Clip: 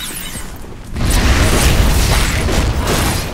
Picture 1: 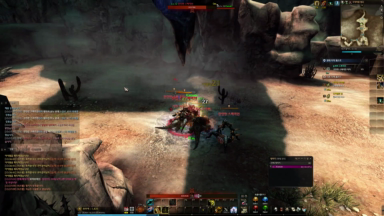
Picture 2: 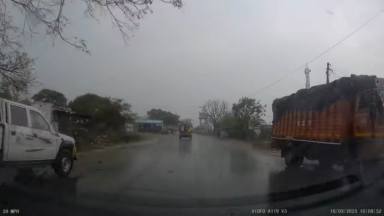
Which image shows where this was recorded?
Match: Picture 1